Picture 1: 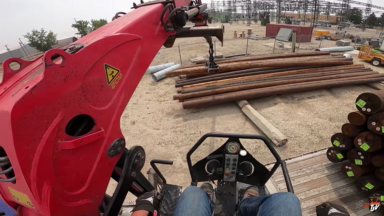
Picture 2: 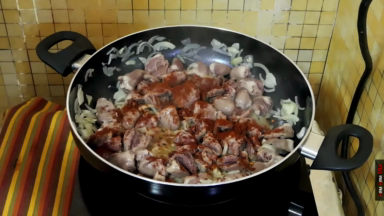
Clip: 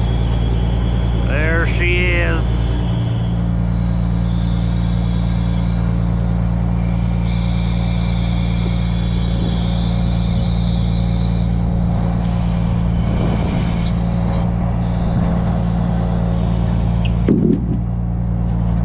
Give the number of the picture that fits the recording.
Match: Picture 1